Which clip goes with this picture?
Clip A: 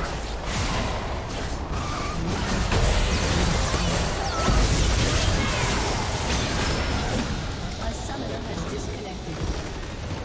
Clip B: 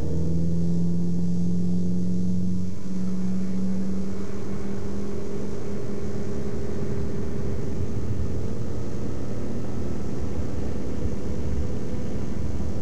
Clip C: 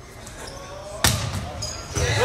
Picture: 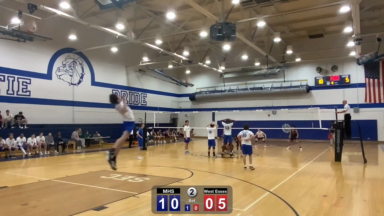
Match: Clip C